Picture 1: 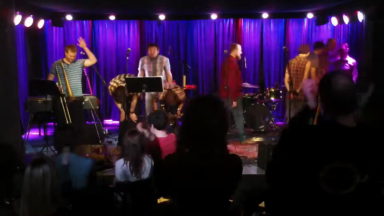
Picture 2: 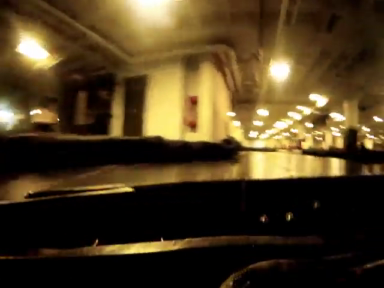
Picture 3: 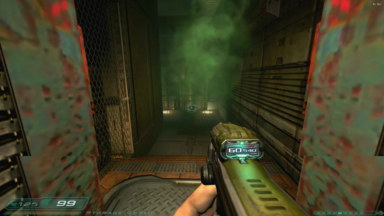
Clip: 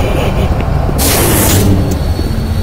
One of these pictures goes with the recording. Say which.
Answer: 3